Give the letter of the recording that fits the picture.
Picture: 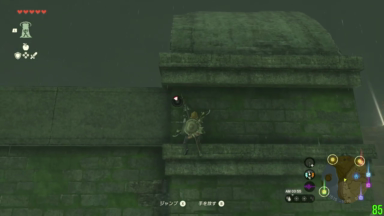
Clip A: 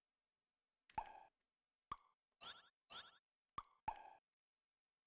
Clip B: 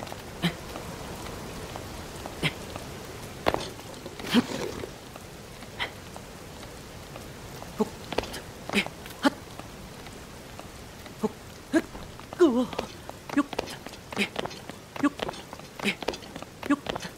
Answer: B